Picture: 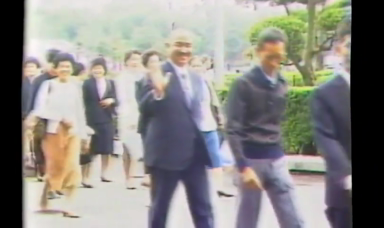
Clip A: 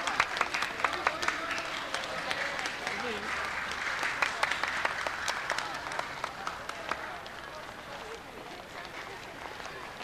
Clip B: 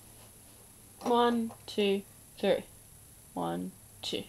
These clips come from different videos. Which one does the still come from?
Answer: A